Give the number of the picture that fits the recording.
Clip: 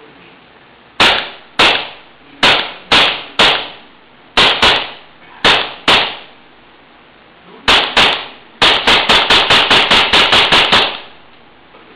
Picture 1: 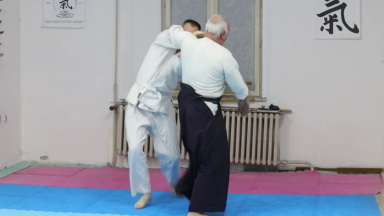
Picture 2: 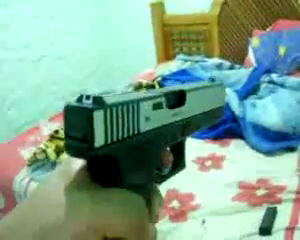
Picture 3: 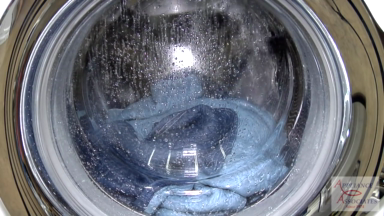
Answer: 2